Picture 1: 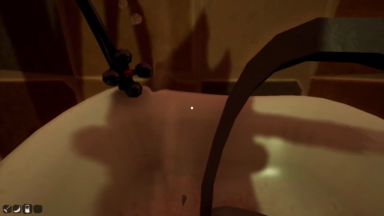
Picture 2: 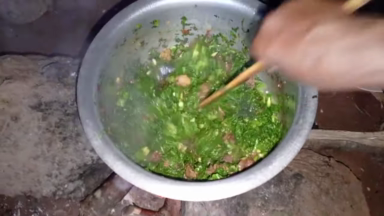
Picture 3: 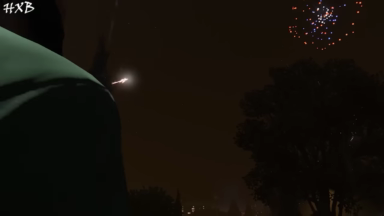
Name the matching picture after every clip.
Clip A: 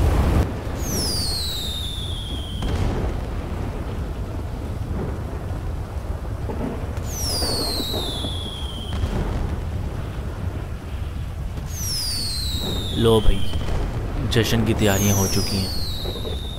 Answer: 3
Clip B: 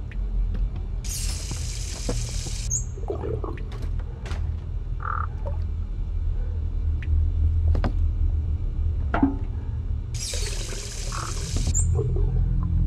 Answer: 1